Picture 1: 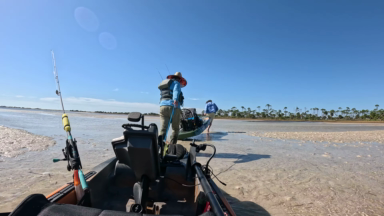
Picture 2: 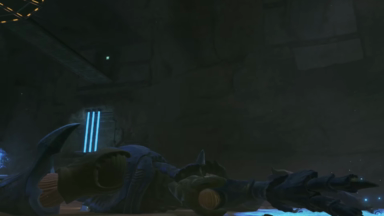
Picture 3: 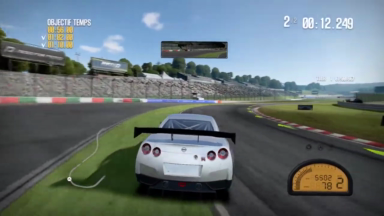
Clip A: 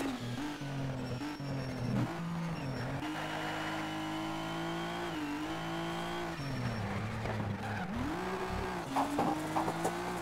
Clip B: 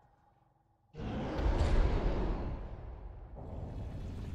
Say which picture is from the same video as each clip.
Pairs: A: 3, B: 2